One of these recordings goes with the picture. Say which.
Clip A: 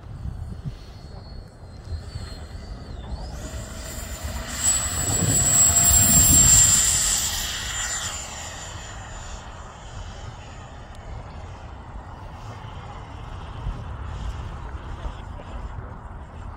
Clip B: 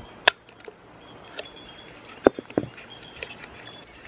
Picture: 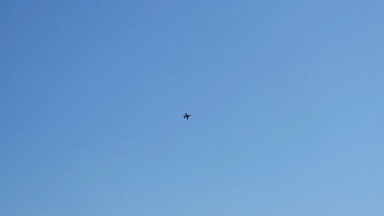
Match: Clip A